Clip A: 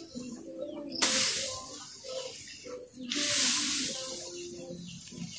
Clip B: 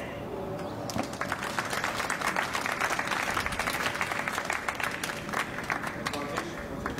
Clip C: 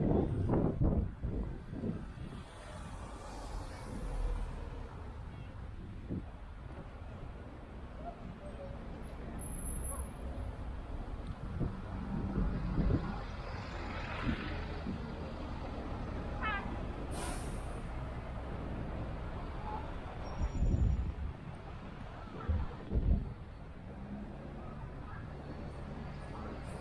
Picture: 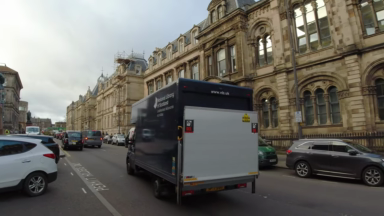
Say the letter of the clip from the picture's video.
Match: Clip C